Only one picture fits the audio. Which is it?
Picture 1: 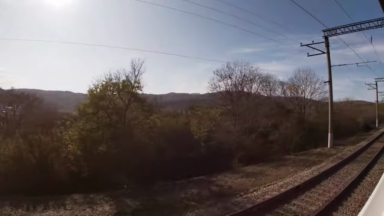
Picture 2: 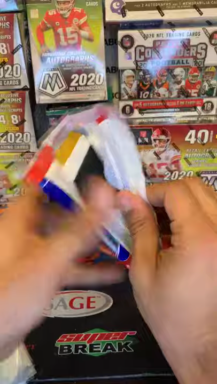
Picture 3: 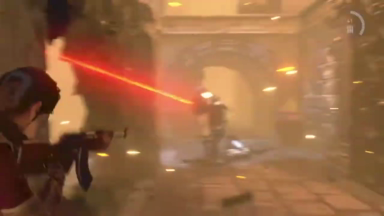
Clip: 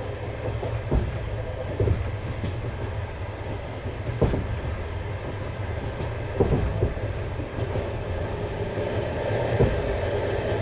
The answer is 1